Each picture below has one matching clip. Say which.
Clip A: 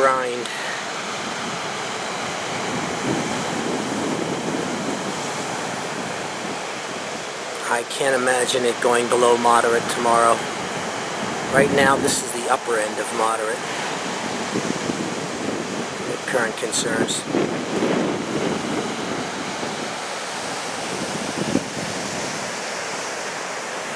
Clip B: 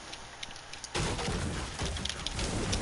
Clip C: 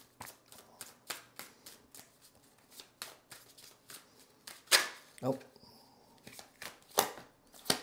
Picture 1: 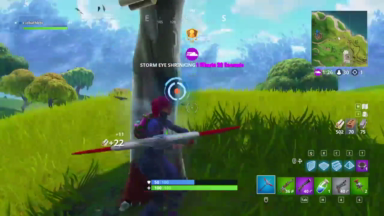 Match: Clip B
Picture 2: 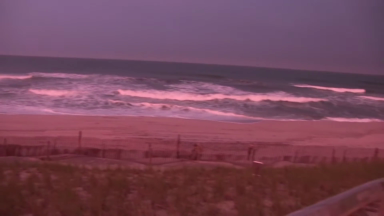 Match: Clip A